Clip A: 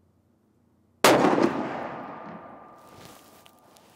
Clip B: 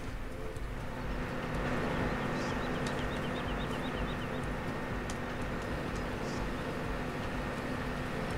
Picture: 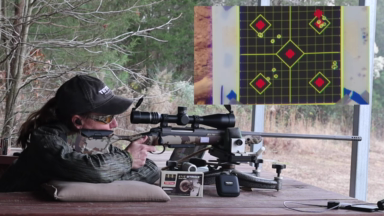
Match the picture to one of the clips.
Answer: A